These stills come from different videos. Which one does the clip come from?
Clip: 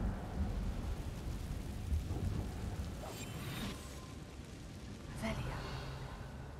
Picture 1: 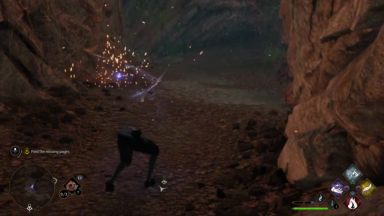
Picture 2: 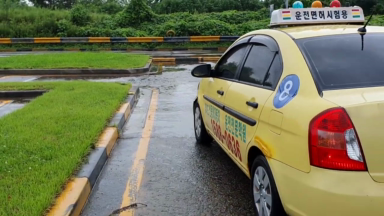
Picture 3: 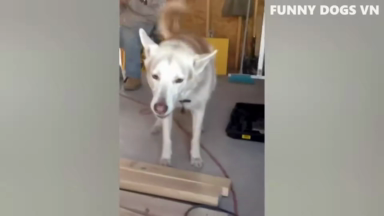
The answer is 1